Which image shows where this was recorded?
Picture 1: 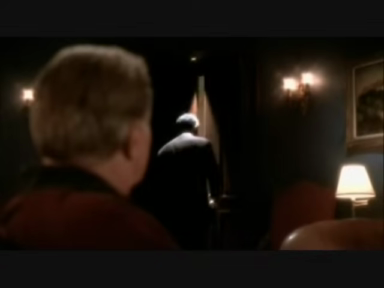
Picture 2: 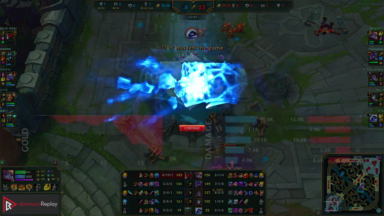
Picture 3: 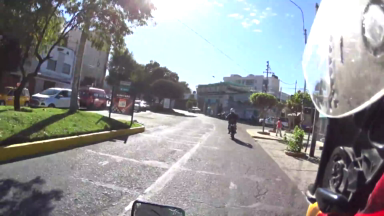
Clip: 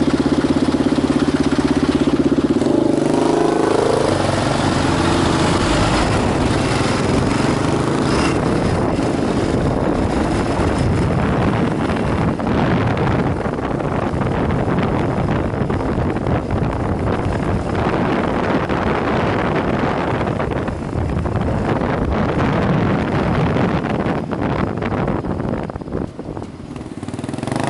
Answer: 3